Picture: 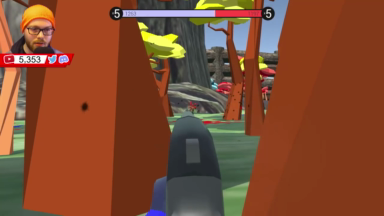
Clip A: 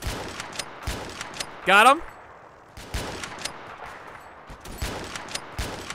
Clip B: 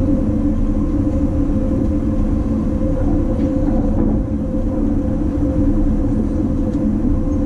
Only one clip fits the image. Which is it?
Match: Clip A